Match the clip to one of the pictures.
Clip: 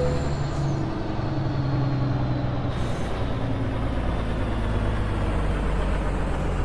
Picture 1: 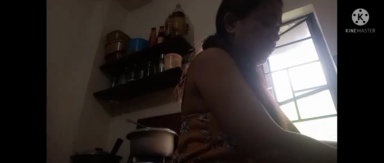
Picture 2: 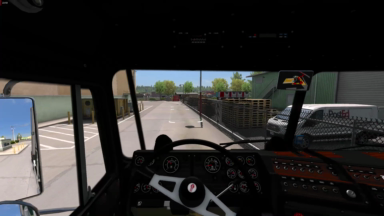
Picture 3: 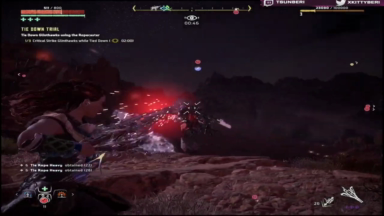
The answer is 2